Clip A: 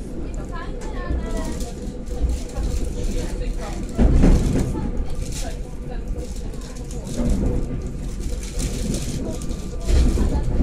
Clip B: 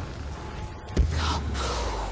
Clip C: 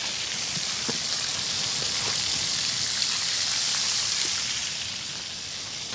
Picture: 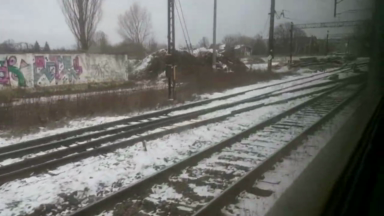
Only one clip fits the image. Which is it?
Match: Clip A